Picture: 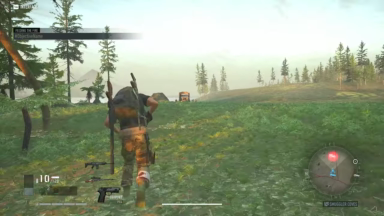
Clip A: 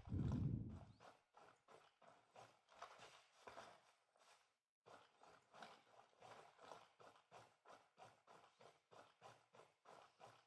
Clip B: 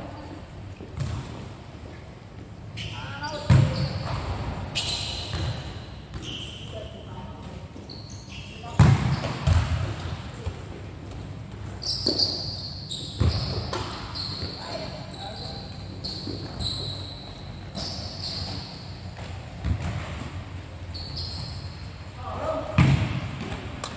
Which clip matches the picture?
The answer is A